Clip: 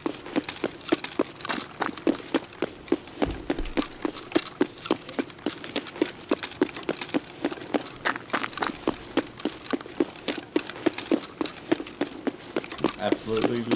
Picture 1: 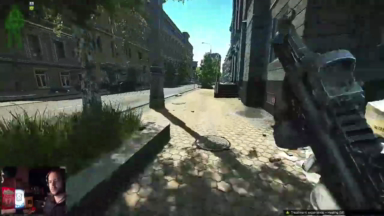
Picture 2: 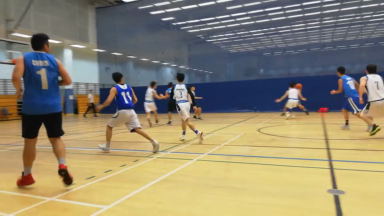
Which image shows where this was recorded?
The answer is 1